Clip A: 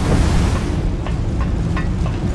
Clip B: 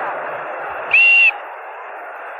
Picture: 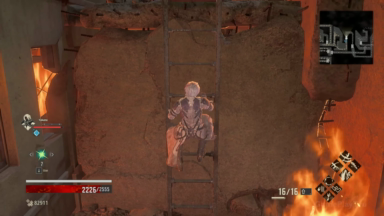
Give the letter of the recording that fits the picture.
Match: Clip A